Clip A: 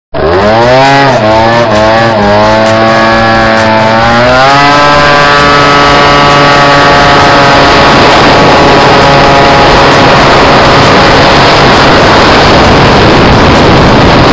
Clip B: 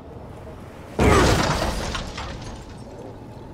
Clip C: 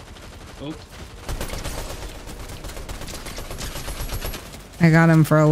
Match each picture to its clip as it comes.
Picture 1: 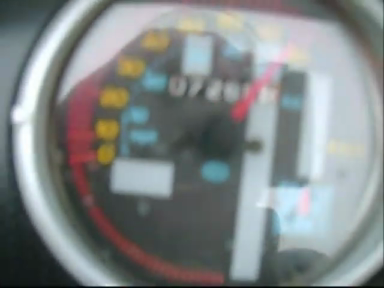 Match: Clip A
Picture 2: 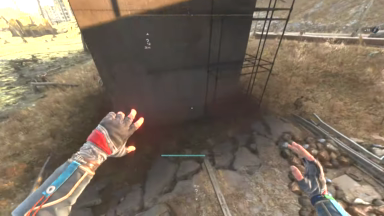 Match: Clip B